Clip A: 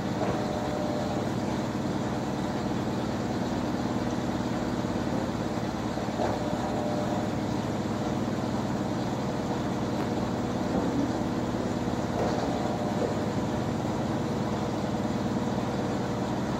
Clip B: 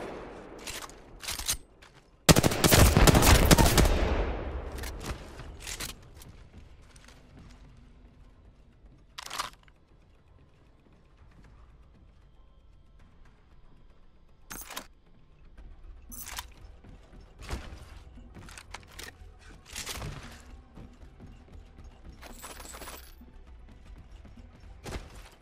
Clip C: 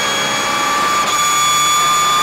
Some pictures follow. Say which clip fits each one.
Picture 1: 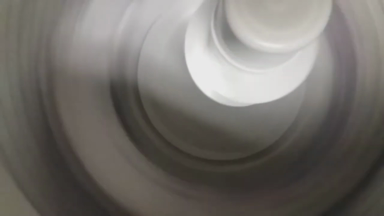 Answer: A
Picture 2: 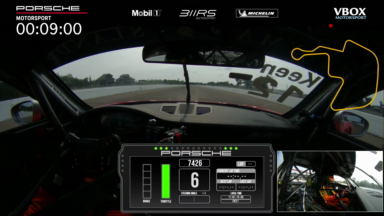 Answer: C